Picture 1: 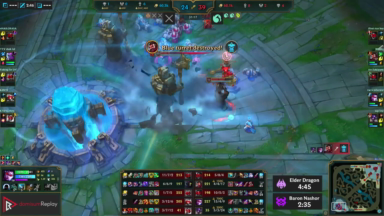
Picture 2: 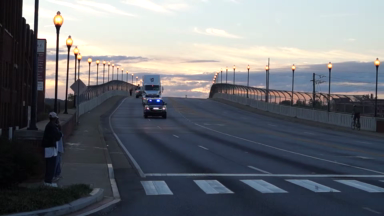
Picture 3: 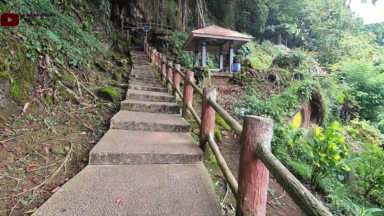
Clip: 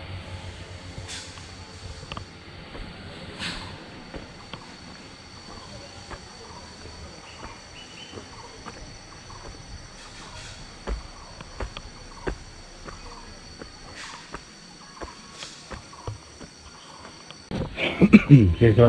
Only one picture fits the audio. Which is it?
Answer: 3